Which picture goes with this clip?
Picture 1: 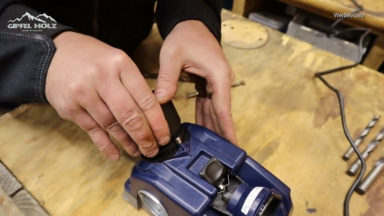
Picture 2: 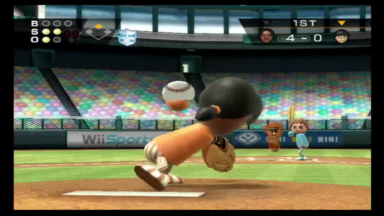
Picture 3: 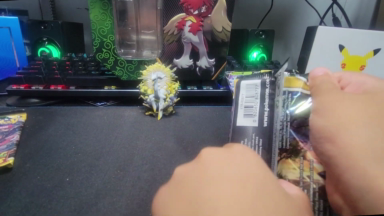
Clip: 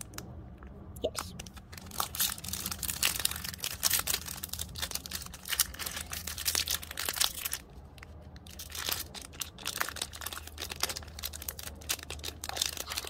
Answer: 3